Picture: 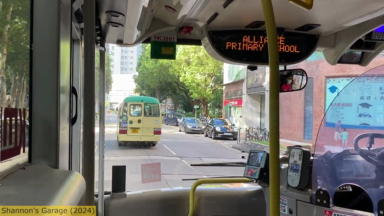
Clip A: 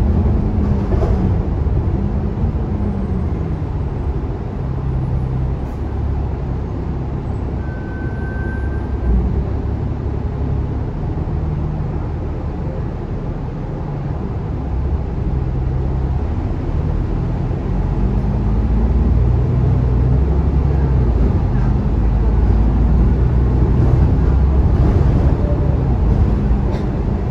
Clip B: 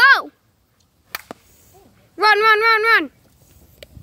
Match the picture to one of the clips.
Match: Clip A